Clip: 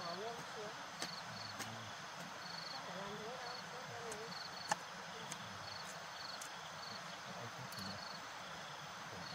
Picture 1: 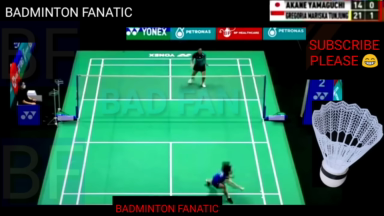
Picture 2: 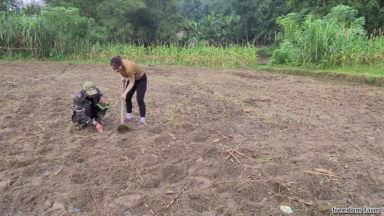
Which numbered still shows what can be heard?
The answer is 2